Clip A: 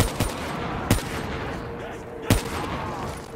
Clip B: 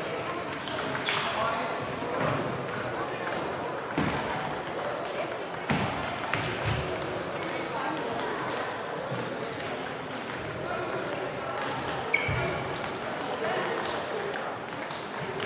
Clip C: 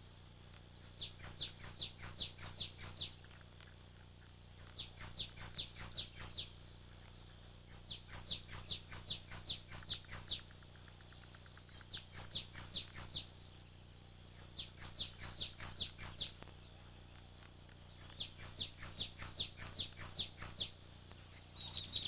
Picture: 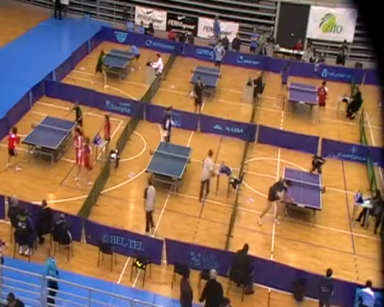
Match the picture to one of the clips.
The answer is B